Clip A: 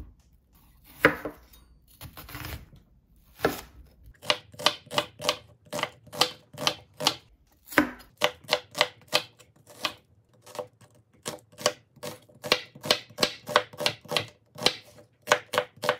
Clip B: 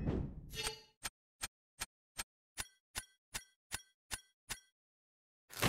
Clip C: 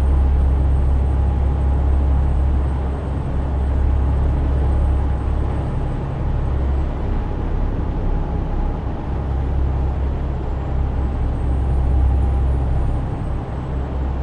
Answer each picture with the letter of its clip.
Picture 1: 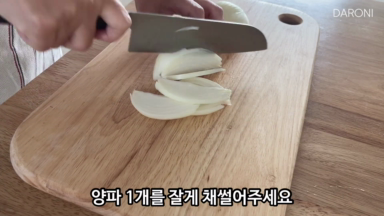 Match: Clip A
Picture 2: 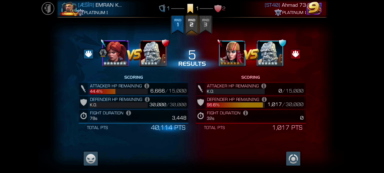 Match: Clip B